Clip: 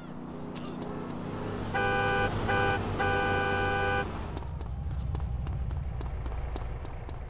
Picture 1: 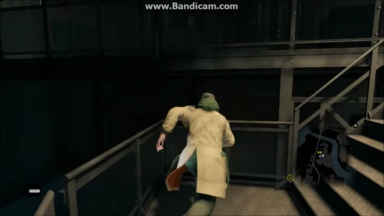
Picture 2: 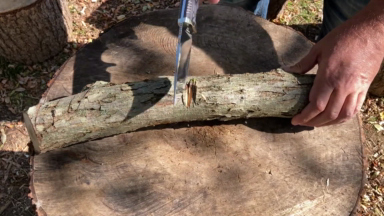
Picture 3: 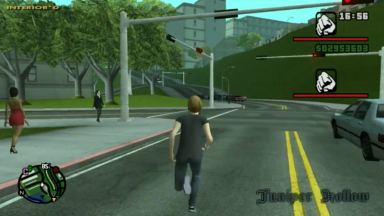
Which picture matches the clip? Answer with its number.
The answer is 3